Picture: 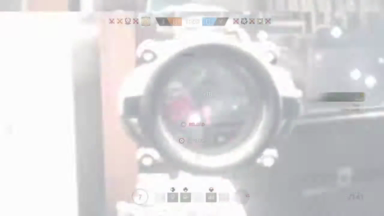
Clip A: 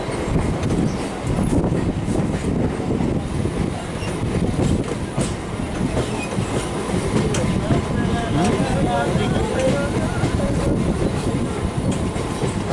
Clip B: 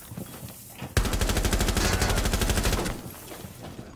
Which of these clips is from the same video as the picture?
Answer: B